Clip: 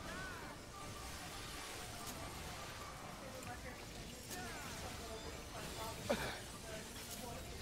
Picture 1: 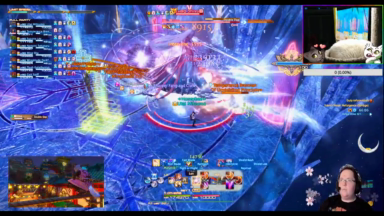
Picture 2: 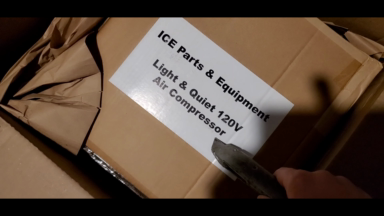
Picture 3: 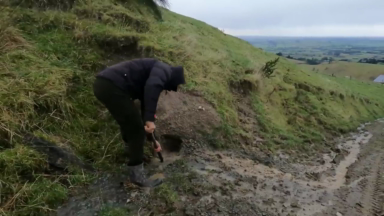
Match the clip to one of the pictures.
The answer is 1